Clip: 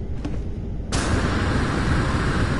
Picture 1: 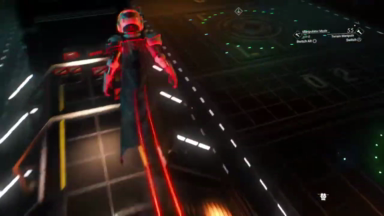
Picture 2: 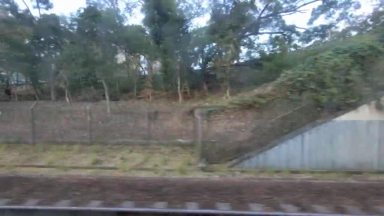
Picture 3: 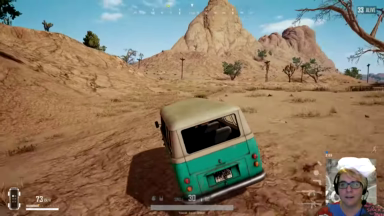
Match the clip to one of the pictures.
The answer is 1